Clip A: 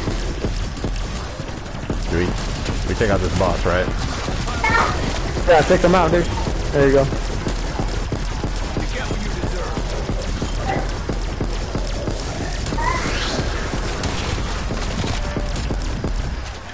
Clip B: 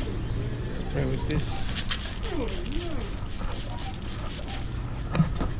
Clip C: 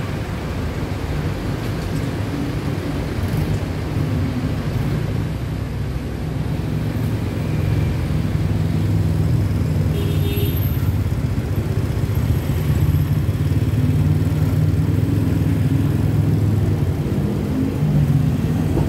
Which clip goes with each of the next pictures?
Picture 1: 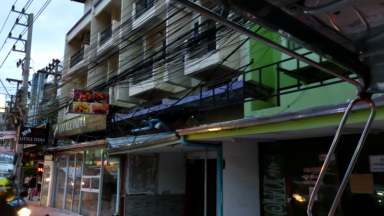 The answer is C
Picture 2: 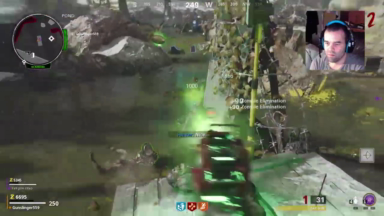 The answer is A